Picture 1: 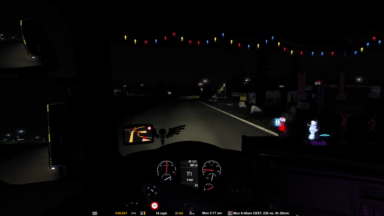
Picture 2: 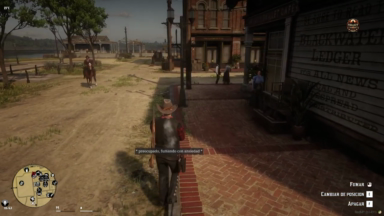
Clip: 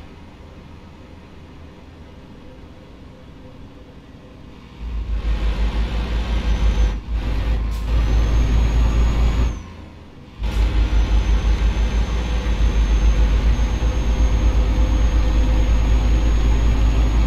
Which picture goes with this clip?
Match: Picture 1